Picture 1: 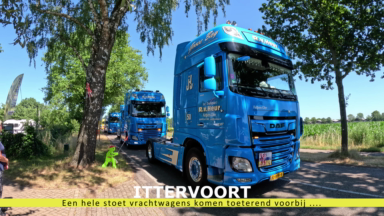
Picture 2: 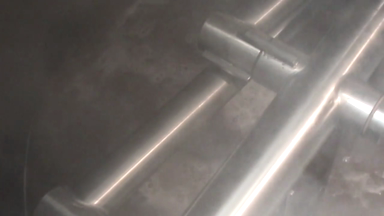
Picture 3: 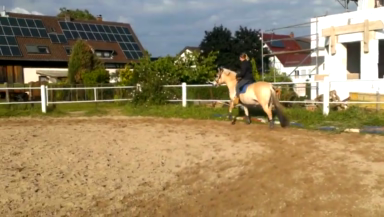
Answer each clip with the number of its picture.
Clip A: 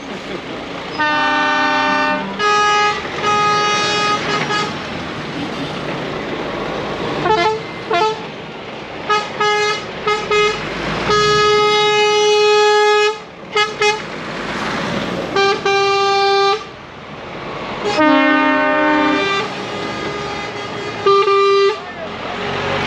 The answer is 1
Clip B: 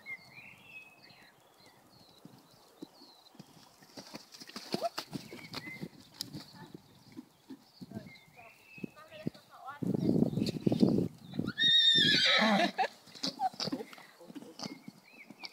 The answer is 3